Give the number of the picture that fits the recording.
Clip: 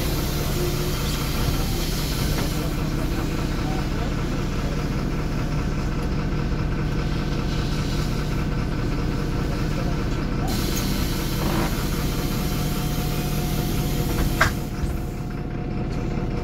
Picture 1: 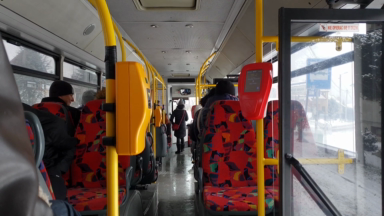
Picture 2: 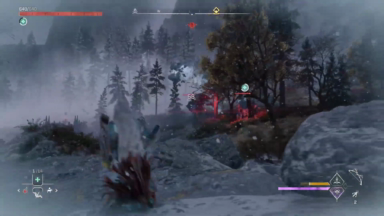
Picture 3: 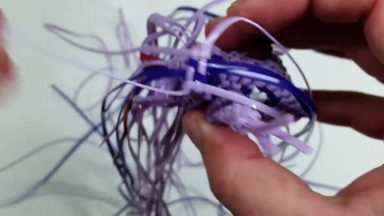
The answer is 1